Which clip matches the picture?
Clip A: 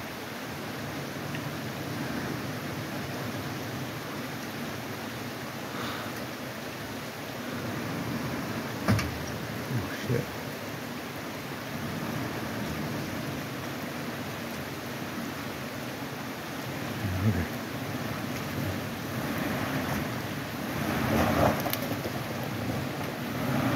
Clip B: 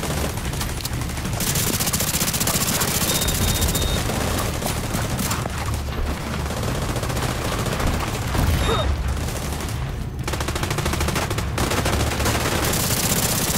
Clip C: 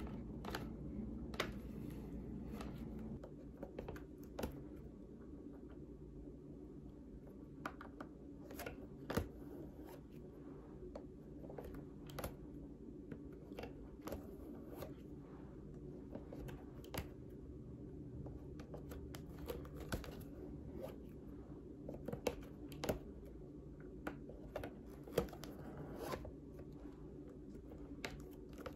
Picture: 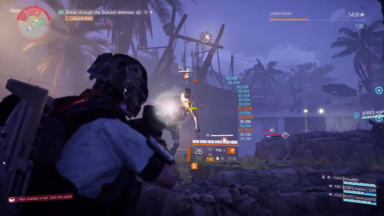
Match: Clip B